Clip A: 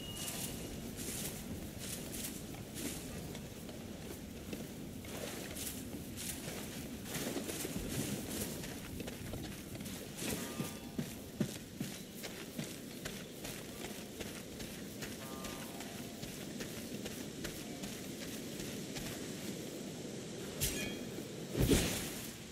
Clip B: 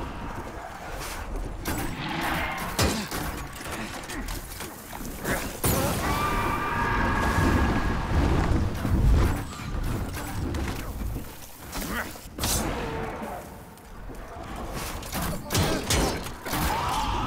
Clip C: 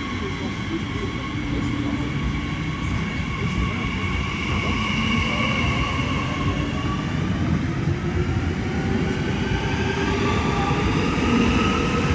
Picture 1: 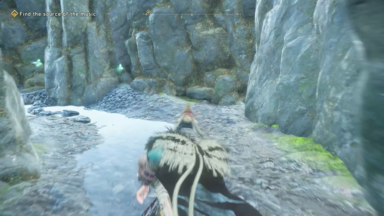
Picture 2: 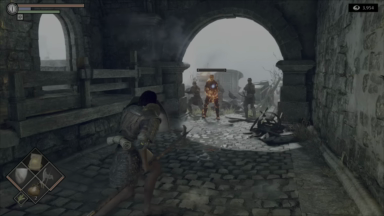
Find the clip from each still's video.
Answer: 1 A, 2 B